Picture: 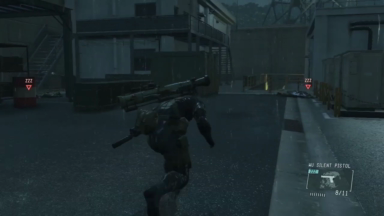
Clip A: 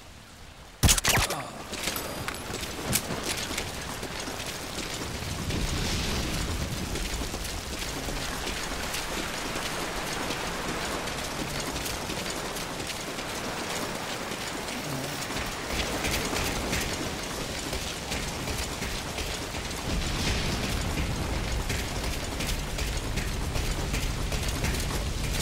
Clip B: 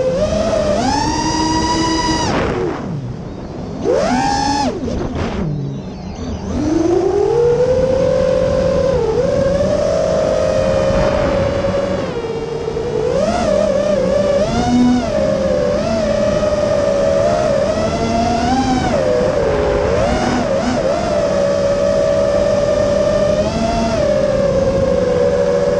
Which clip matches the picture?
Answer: A